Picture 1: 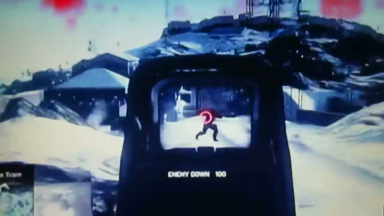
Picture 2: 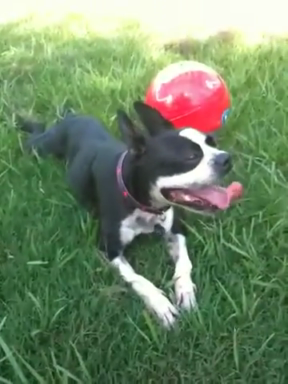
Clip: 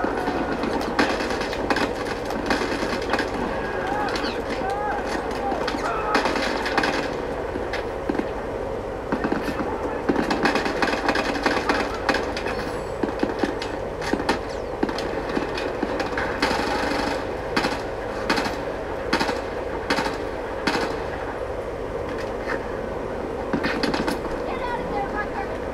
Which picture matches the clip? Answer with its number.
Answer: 1